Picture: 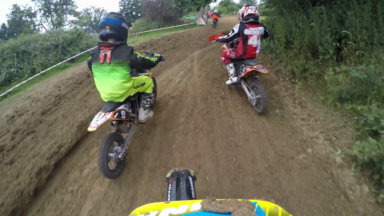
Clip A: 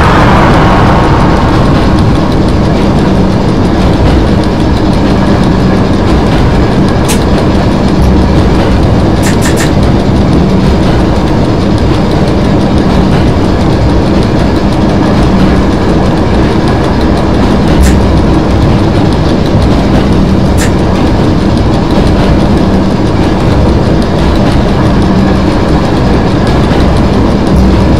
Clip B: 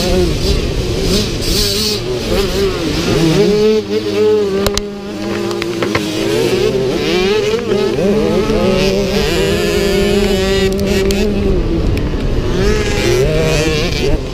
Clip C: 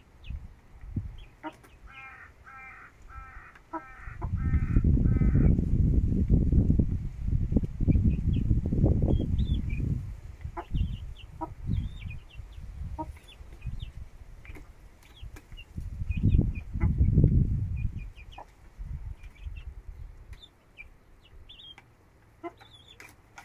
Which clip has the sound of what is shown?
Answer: B